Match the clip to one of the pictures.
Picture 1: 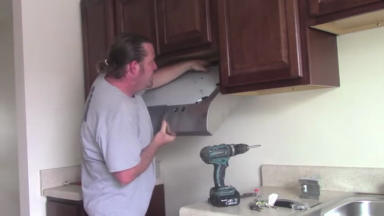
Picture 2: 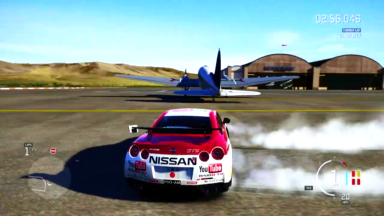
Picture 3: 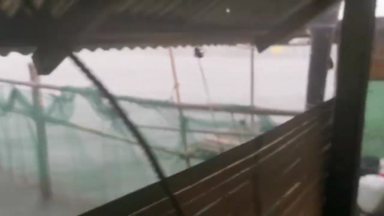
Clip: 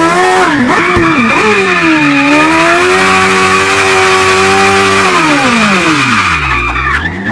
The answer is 2